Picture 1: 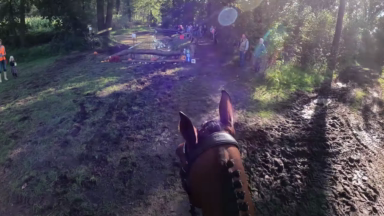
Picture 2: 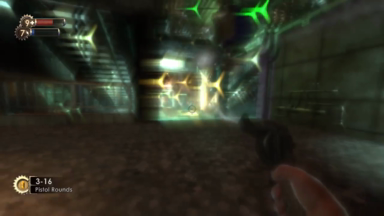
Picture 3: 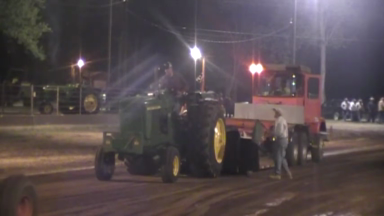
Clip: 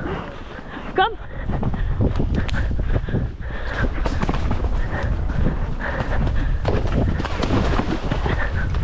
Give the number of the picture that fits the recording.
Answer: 1